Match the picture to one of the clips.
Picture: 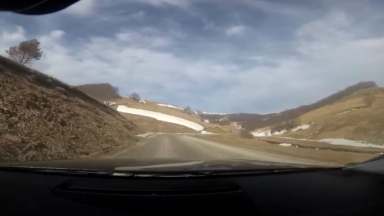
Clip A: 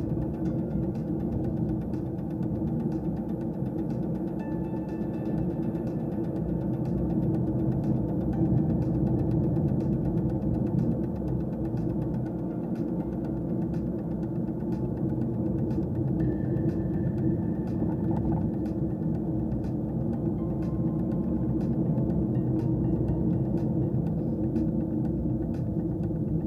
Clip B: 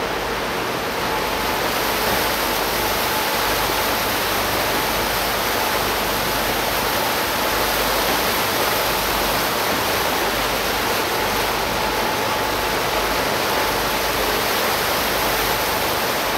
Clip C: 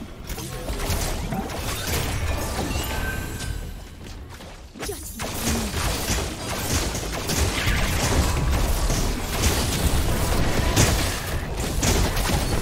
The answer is A